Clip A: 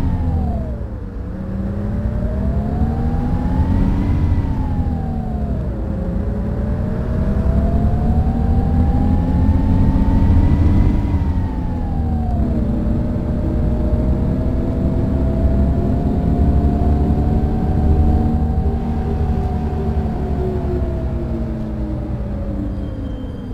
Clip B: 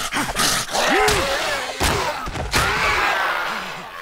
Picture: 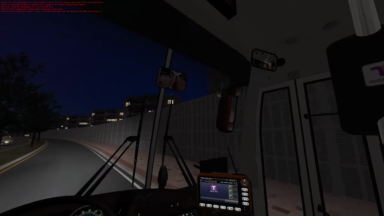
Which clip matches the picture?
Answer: A